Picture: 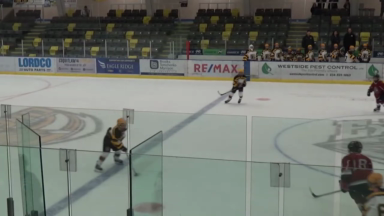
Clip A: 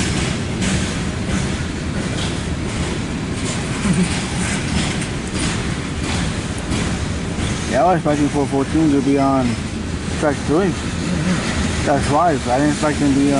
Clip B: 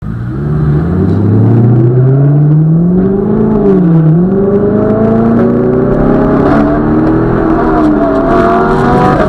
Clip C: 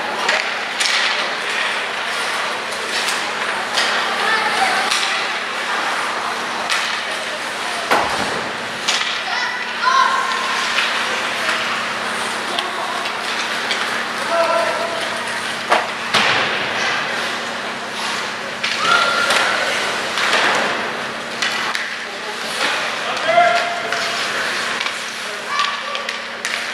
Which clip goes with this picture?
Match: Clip C